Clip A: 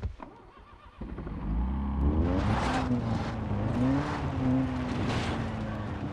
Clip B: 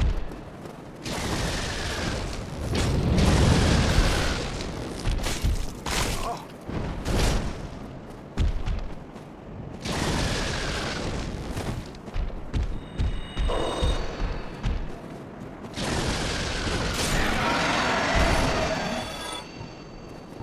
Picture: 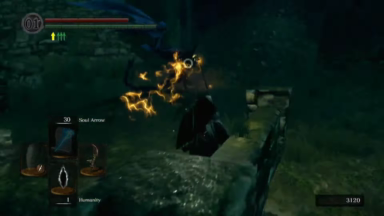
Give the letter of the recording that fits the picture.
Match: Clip B